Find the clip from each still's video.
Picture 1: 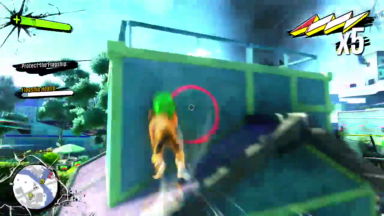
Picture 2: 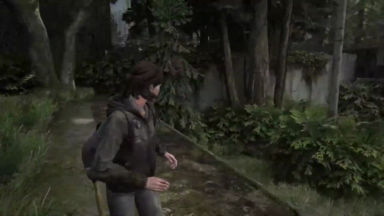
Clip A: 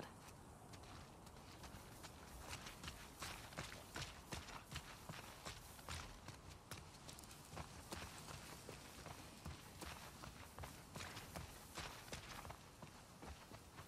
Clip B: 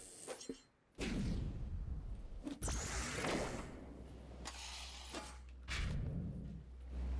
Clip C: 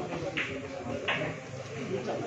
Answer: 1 B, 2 A